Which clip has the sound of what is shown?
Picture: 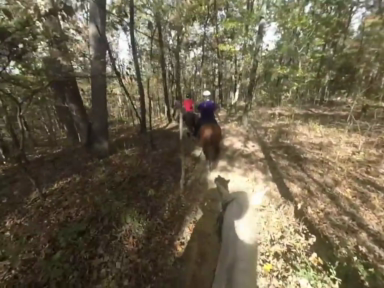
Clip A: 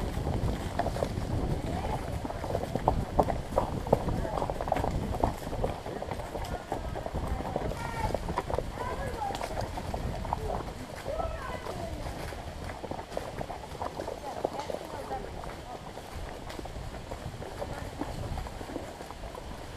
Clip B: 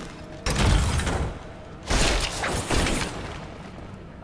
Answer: A